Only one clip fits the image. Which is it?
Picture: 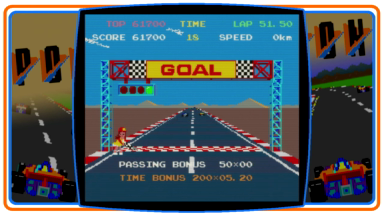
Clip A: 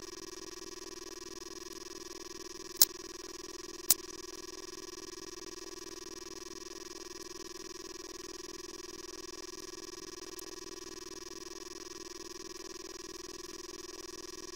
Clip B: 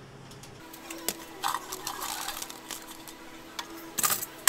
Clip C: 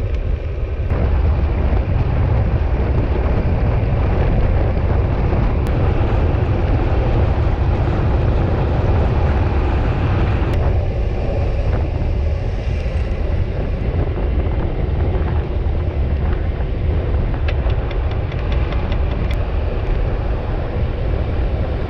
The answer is A